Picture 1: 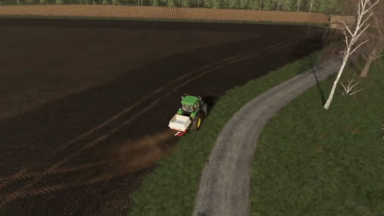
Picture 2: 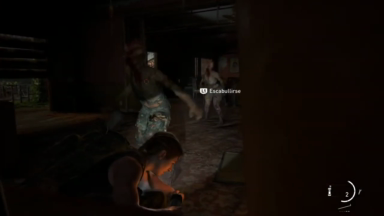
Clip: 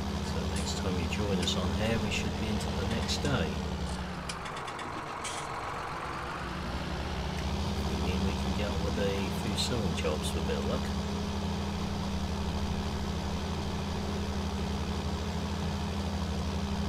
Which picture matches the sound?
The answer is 1